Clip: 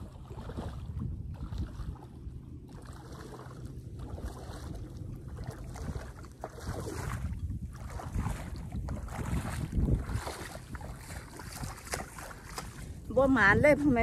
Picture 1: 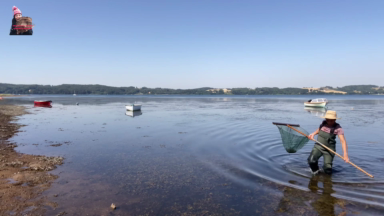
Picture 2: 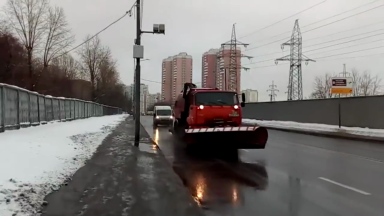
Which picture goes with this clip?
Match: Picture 1